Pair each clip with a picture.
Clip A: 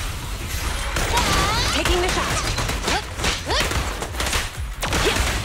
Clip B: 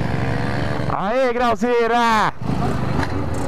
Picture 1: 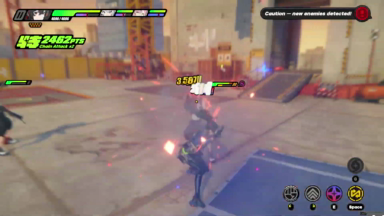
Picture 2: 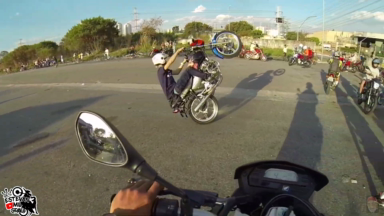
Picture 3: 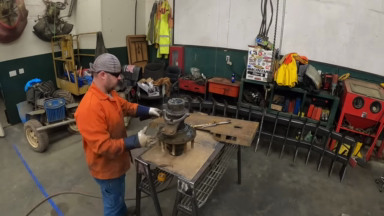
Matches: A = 1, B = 2